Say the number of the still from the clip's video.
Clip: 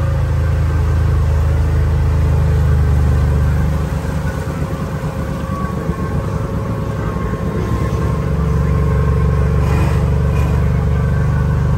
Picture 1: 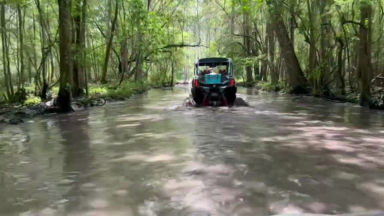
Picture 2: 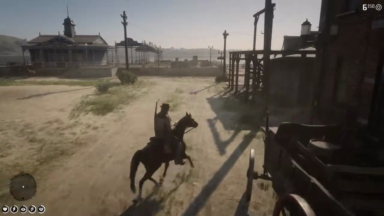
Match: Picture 1